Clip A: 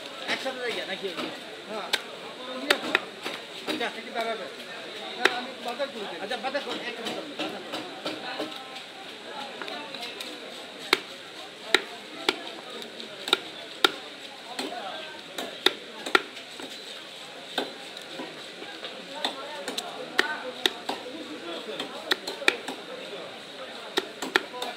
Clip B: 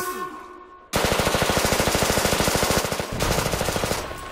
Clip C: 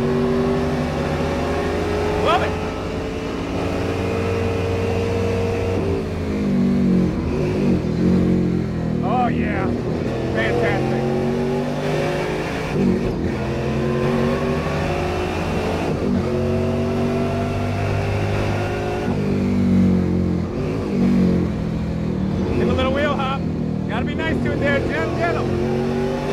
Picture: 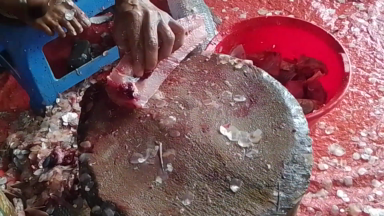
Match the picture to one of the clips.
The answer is A